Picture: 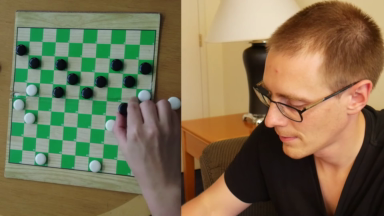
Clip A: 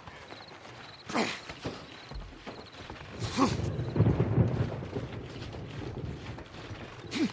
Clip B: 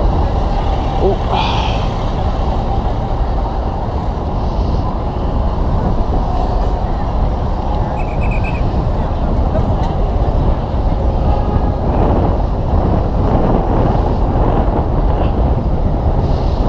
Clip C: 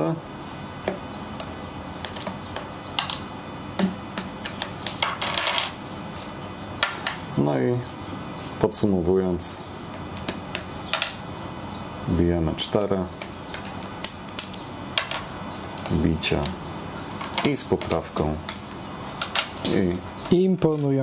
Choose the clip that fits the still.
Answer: C